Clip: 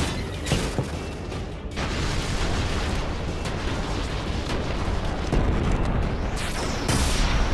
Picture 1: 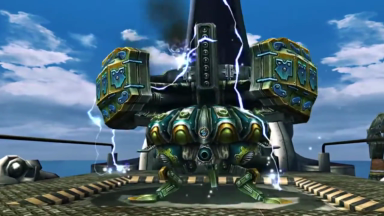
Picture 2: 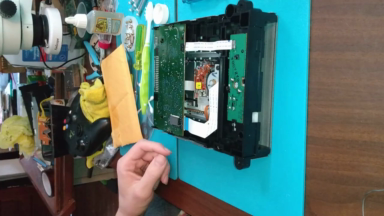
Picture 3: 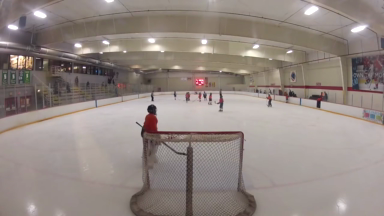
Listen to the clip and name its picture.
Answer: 1